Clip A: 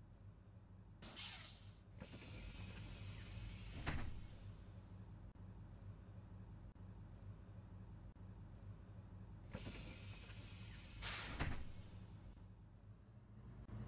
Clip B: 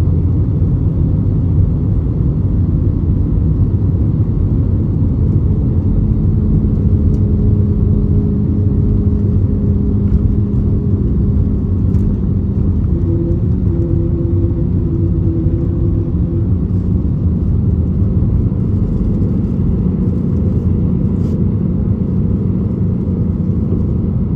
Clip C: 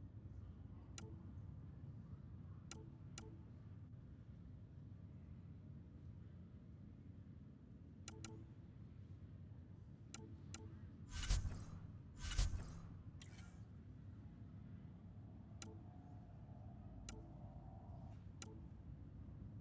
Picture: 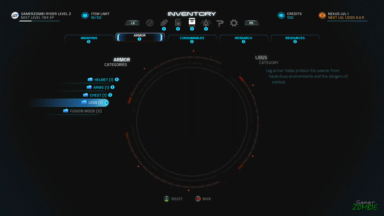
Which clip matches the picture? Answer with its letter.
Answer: C